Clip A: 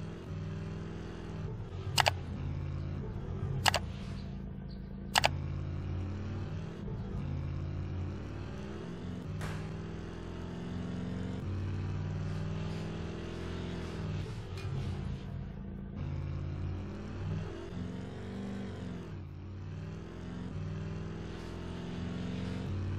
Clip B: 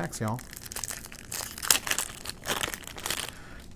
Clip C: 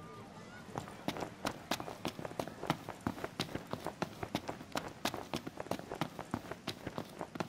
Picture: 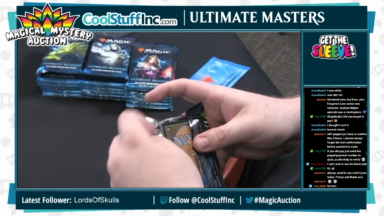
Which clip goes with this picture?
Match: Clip B